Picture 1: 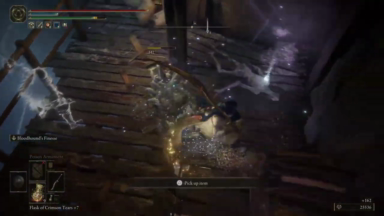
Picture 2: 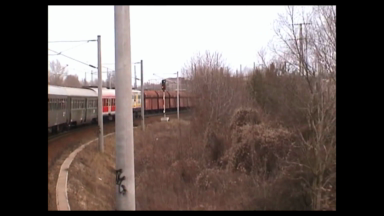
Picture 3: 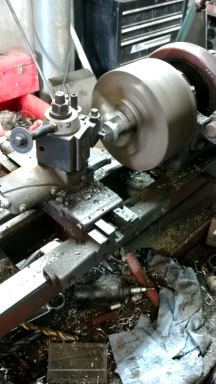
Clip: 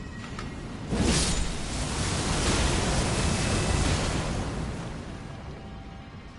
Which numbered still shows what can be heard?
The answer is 1